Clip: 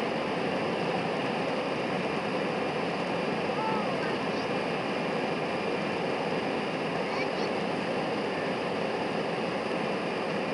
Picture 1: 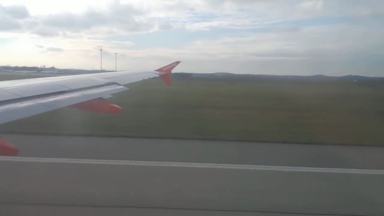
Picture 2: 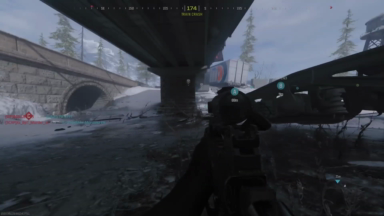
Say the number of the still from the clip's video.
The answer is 1